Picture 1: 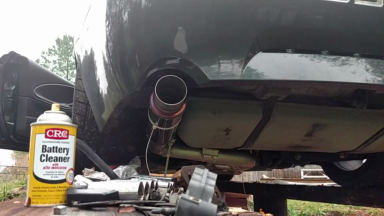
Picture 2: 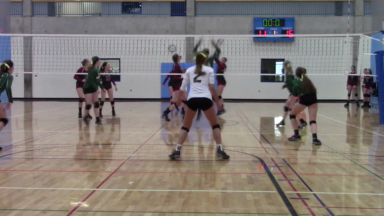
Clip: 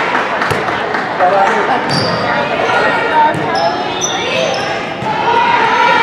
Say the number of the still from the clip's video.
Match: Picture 2